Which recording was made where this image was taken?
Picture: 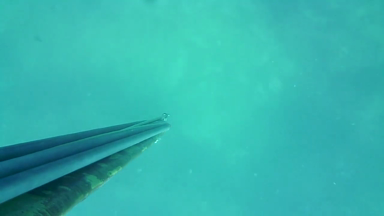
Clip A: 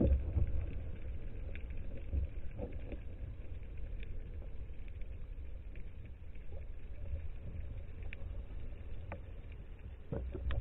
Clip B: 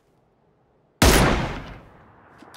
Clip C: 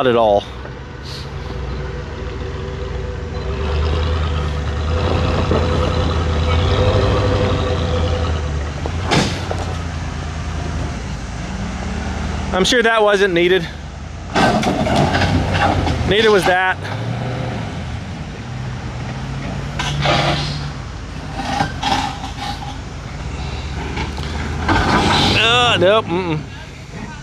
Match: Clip A